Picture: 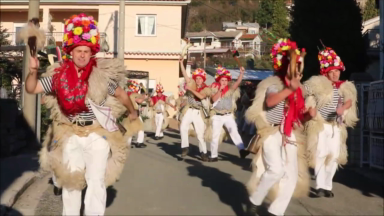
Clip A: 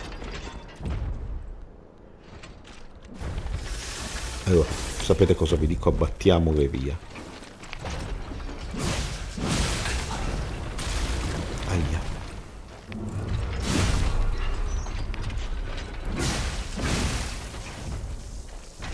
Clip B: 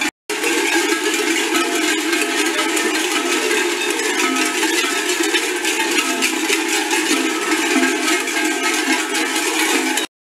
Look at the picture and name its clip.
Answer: B